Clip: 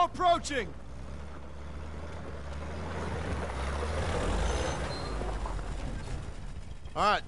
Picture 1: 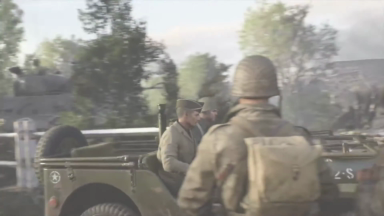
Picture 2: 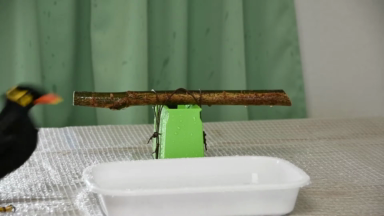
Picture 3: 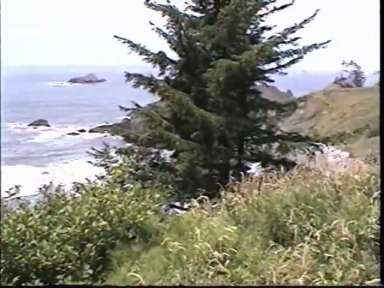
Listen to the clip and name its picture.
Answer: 1